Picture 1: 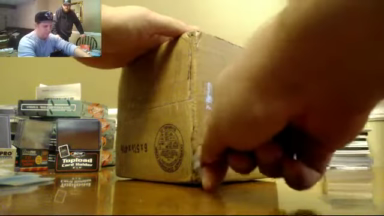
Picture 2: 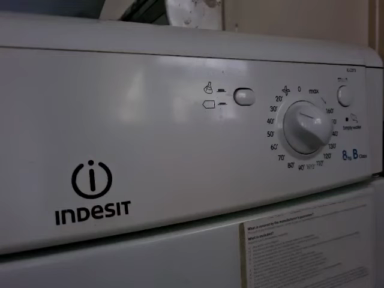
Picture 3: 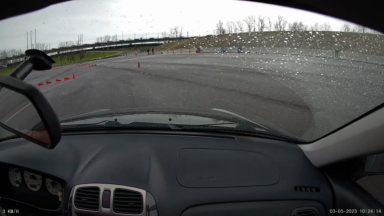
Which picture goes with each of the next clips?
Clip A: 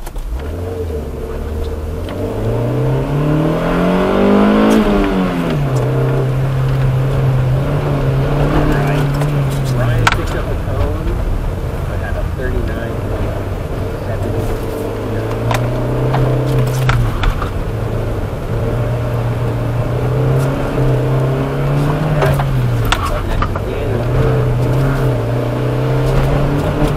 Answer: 3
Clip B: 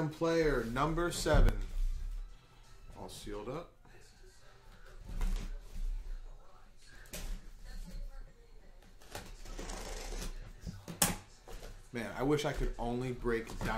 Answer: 1